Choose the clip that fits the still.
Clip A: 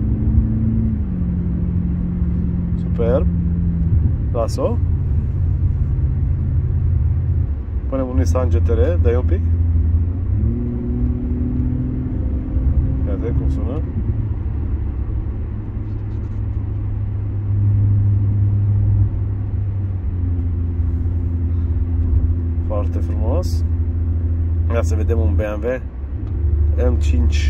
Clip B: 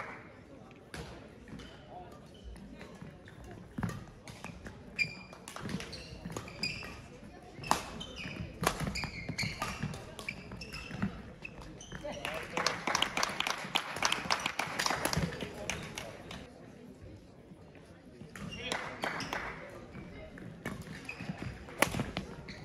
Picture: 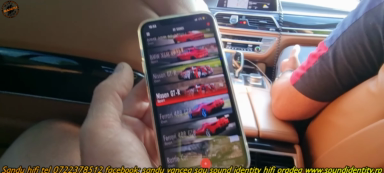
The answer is A